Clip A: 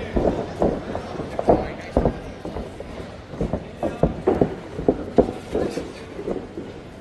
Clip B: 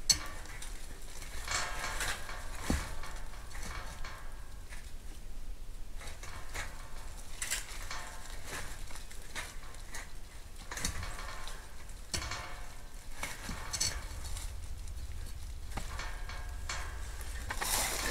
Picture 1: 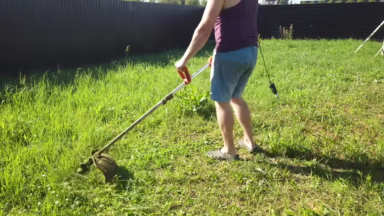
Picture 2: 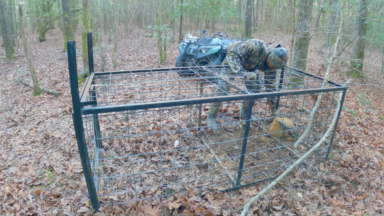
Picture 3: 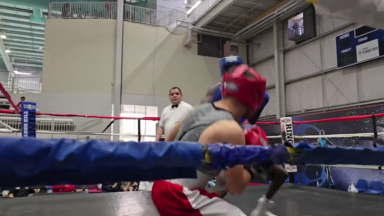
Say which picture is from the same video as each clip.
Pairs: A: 3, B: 2